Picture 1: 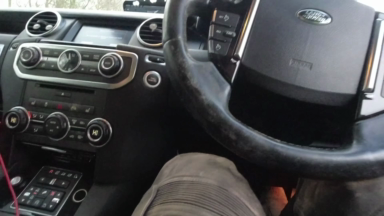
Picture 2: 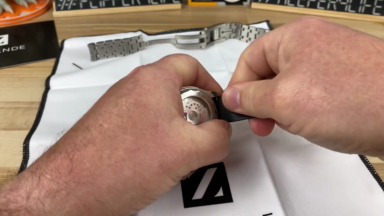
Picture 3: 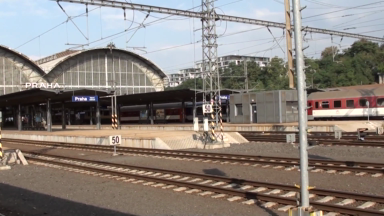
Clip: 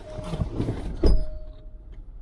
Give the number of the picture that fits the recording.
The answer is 1